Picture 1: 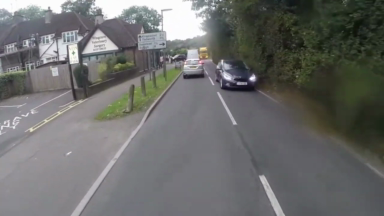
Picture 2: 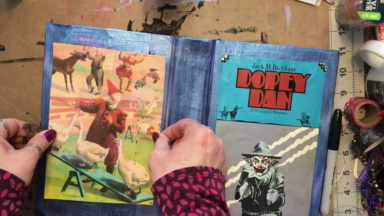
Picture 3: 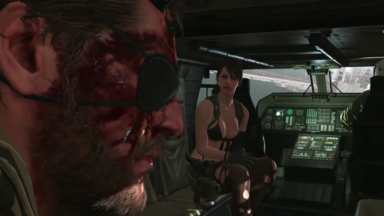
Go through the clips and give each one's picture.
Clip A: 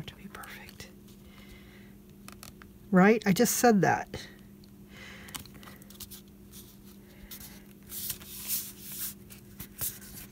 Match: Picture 2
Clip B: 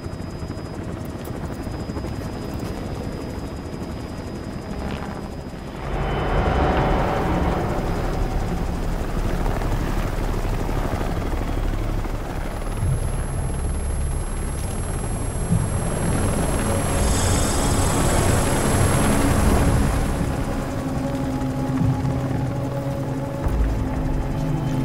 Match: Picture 3